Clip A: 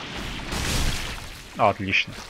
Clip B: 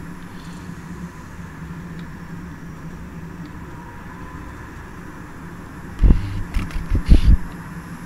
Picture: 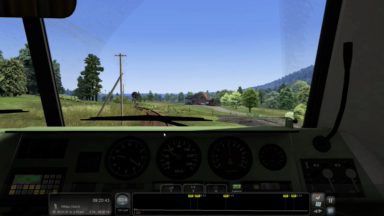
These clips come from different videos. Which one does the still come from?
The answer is B